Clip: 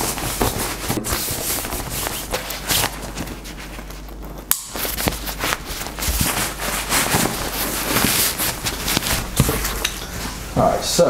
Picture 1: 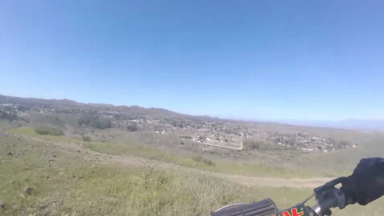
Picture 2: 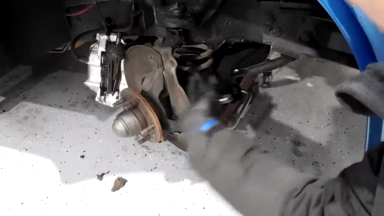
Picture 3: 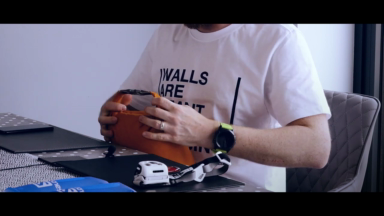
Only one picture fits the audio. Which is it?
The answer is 3